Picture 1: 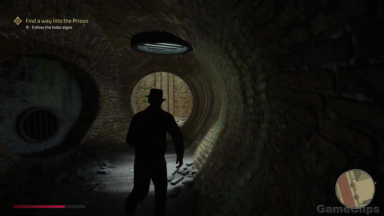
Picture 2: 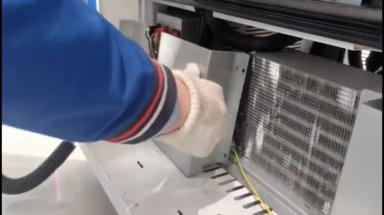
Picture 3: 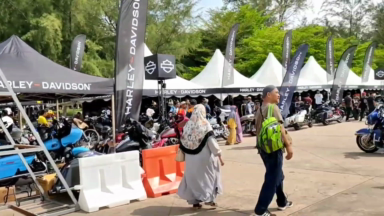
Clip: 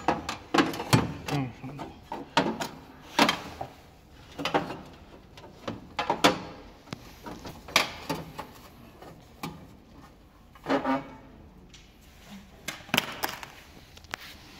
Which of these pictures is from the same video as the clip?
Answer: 2